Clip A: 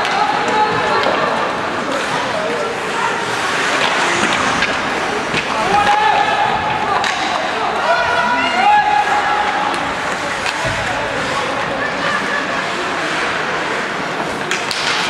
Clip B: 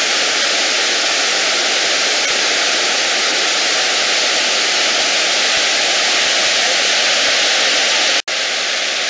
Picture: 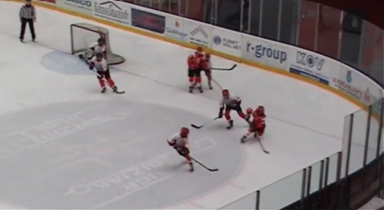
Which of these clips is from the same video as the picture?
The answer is A